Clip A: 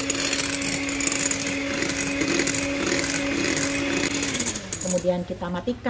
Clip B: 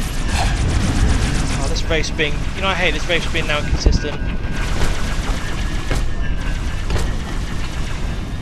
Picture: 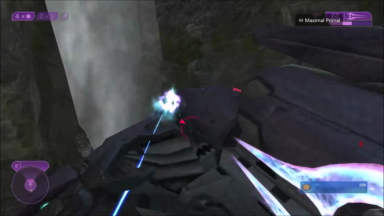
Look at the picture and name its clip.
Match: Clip B